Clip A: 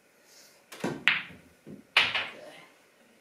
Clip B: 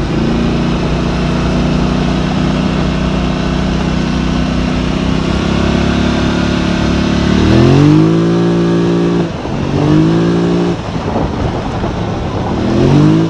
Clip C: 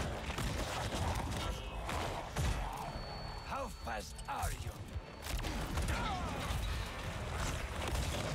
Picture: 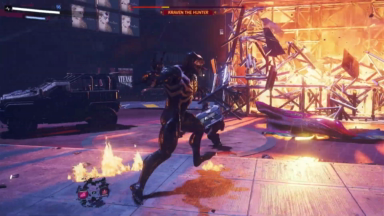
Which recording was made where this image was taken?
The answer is C